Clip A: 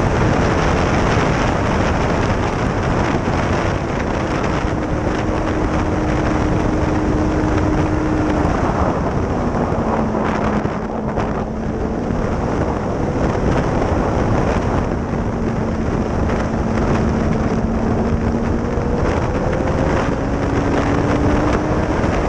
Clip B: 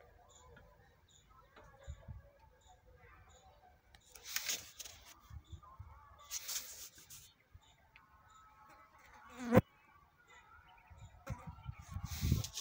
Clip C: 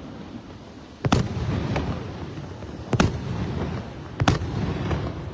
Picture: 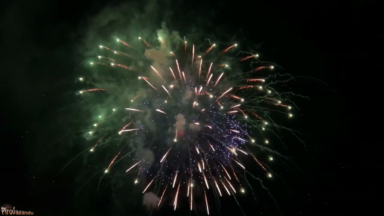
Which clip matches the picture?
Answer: C